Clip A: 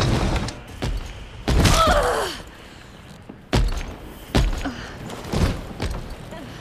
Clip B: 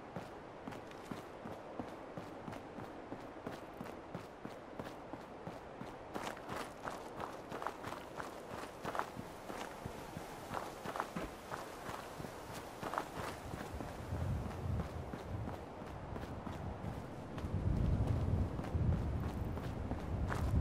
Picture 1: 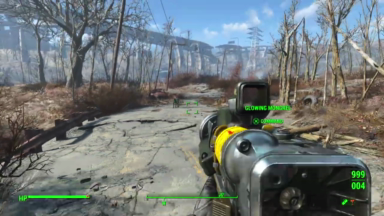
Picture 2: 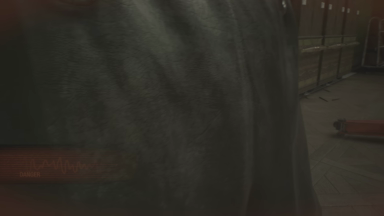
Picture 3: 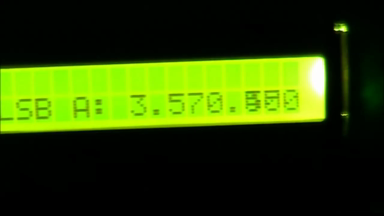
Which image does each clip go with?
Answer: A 2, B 1